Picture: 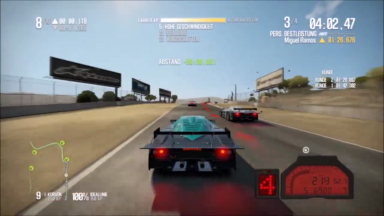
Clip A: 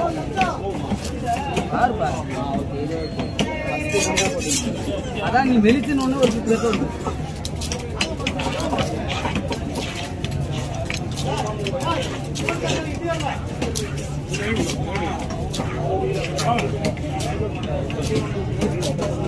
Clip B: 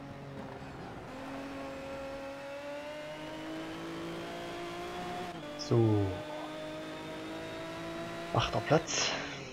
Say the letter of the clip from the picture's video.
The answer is B